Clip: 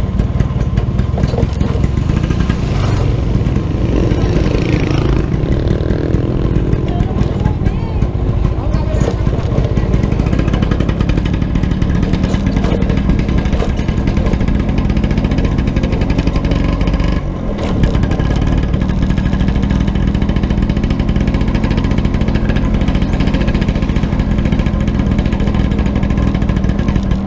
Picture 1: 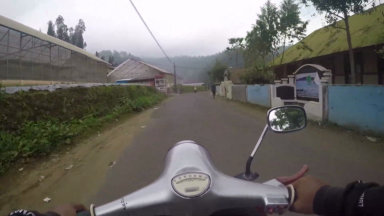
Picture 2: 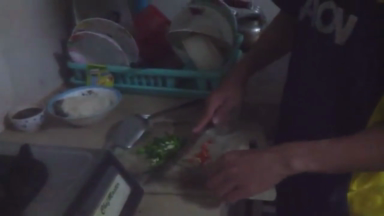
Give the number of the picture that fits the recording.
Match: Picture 1